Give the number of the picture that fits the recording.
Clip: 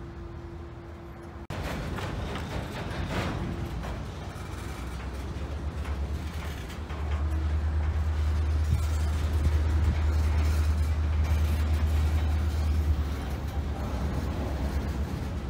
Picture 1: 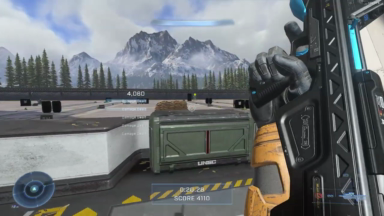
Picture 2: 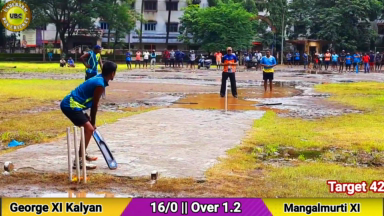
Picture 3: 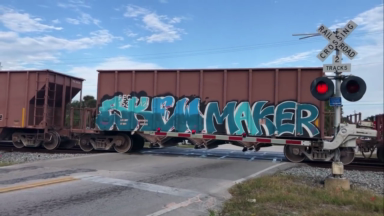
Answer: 3